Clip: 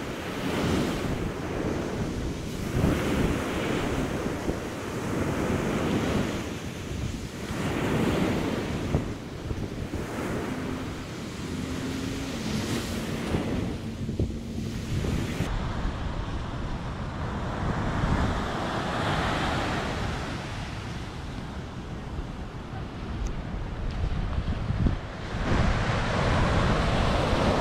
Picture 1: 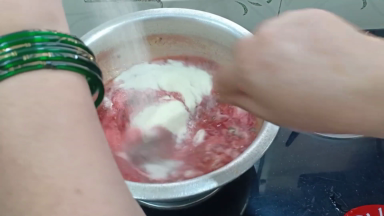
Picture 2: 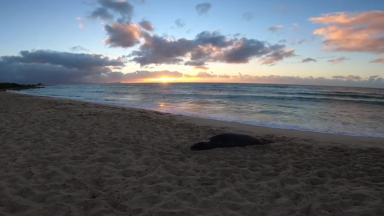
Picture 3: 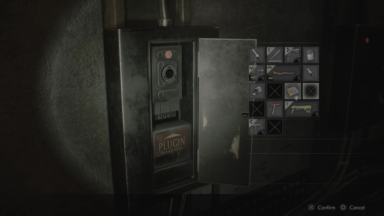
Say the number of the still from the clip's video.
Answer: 2